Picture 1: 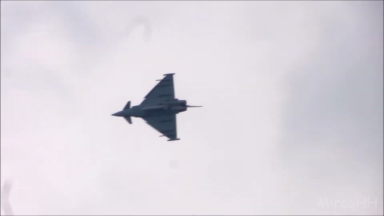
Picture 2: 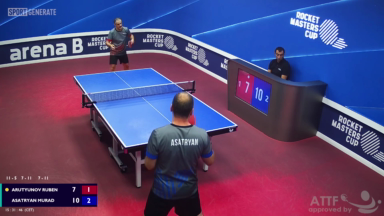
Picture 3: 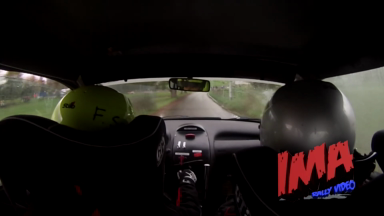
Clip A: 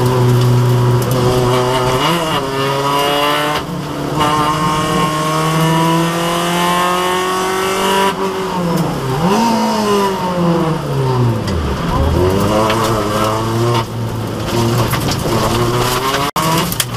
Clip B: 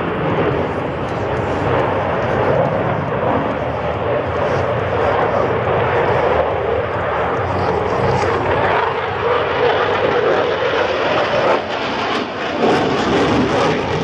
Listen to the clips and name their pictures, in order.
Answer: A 3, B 1